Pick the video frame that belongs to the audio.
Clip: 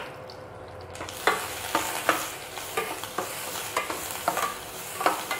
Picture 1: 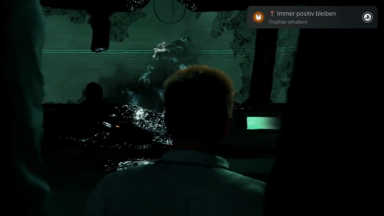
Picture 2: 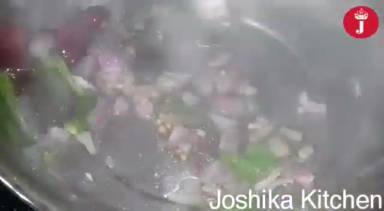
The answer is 2